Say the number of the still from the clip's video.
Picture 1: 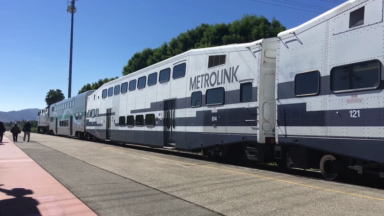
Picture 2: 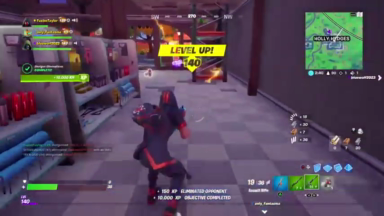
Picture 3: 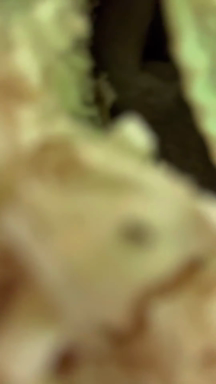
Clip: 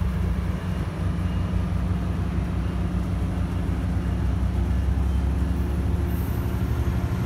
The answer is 1